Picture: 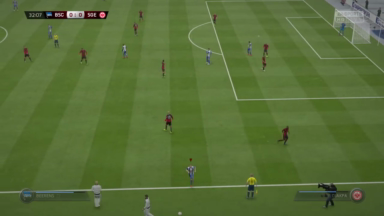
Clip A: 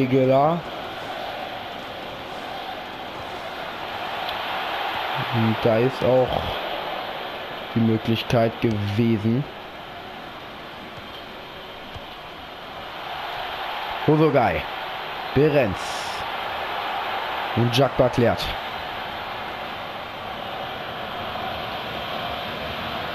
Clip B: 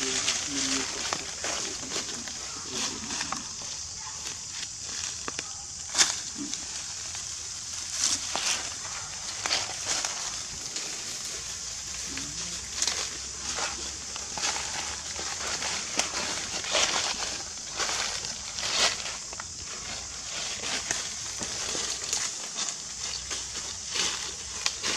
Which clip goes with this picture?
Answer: A